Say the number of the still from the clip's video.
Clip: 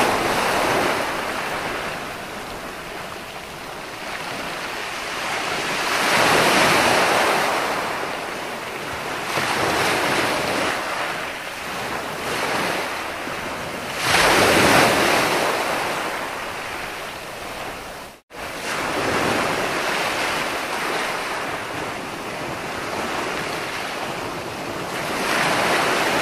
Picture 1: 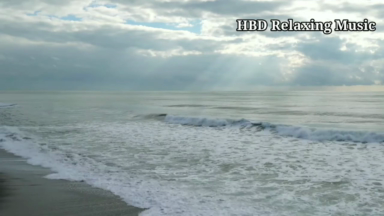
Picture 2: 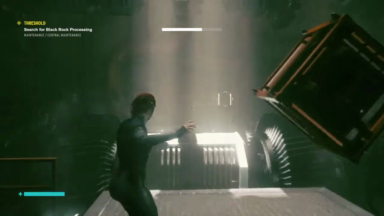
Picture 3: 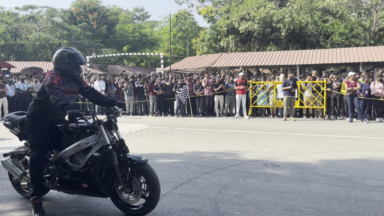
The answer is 1